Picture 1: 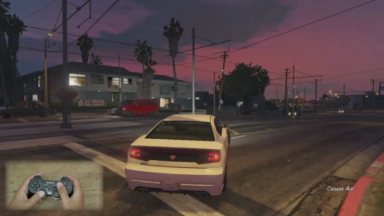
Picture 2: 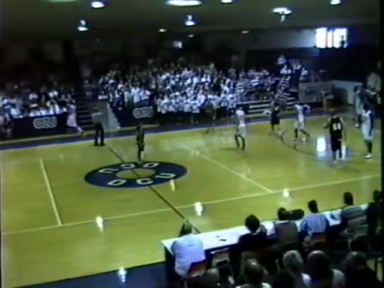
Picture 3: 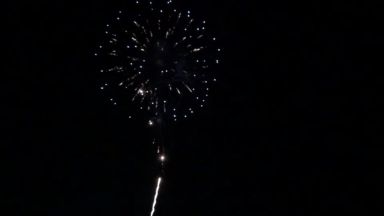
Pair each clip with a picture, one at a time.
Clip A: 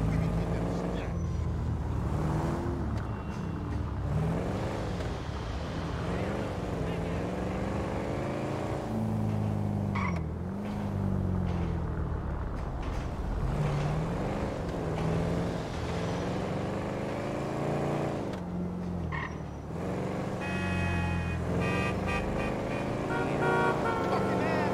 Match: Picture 1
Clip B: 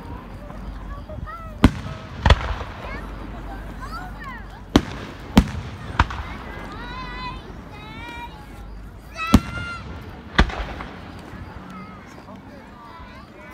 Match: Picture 3